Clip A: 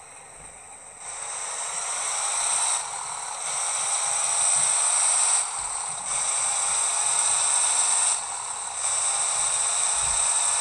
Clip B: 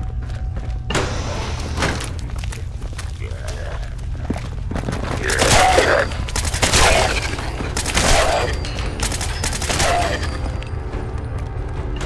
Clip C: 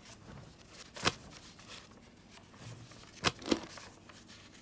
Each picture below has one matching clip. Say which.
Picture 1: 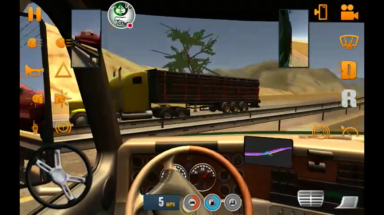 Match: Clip A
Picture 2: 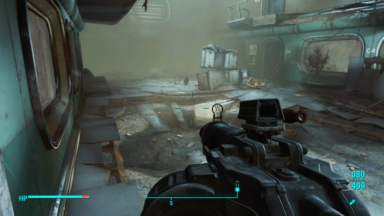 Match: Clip B